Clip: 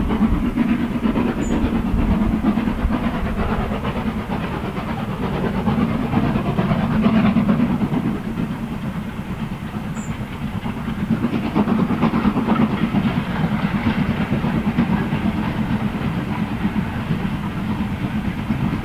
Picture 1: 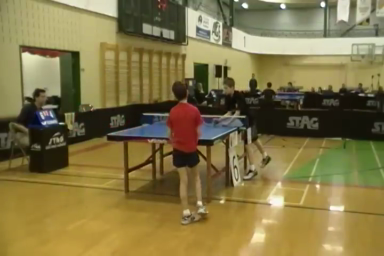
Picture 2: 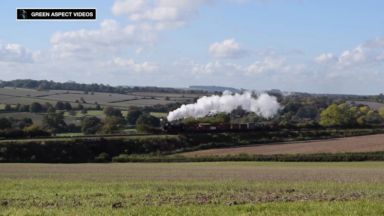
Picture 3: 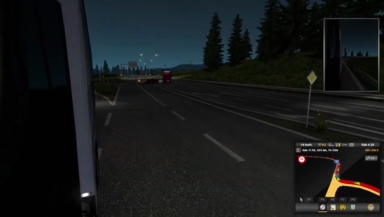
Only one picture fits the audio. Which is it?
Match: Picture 2